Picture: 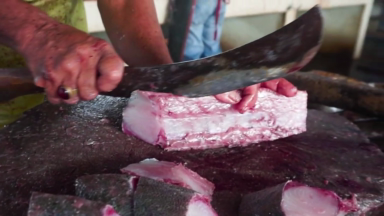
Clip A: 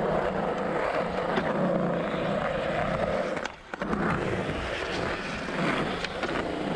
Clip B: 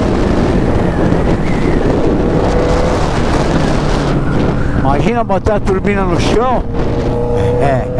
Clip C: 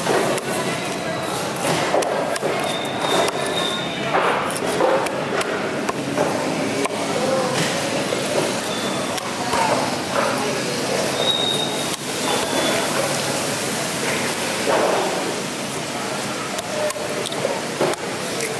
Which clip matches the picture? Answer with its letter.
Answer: C